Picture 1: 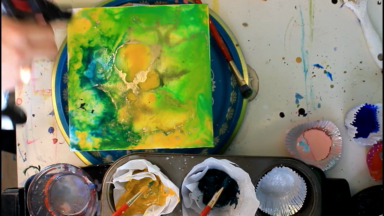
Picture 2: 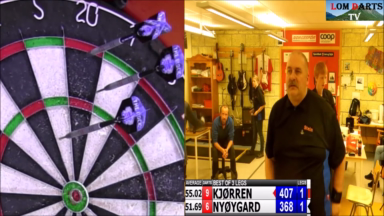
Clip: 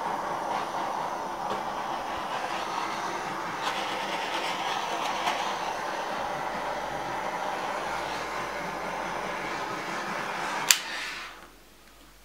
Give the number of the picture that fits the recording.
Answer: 1